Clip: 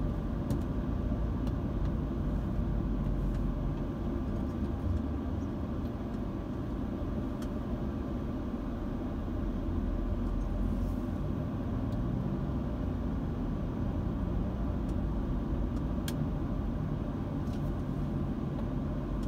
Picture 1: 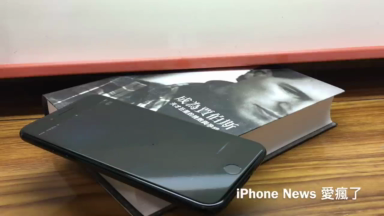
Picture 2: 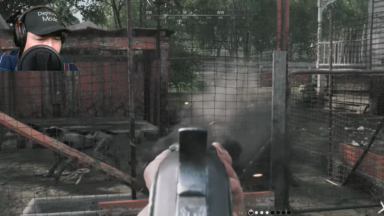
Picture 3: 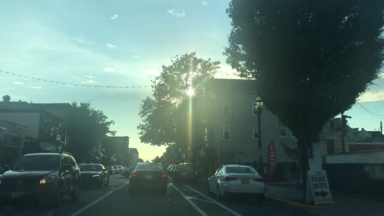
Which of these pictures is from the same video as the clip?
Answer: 3